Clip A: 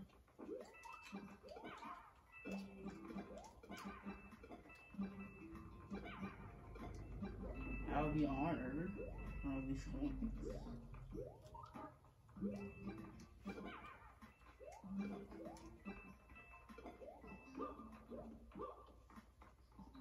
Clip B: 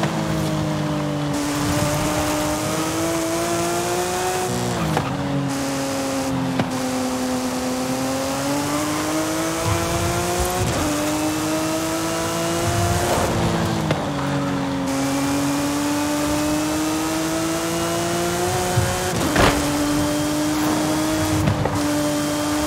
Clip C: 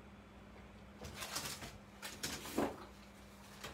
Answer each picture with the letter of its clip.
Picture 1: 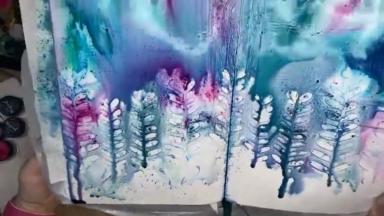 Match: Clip C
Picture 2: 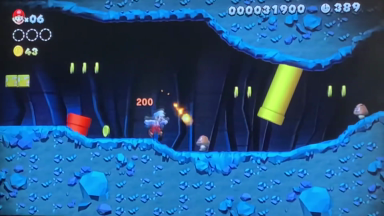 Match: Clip A